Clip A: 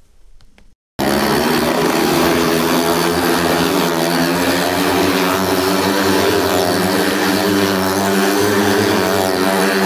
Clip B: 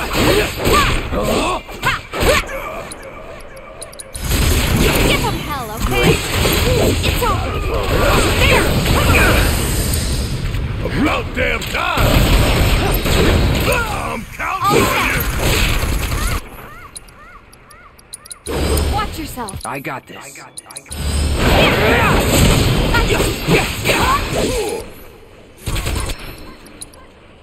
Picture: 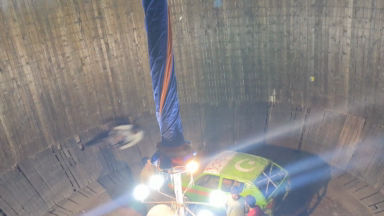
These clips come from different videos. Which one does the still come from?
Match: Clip A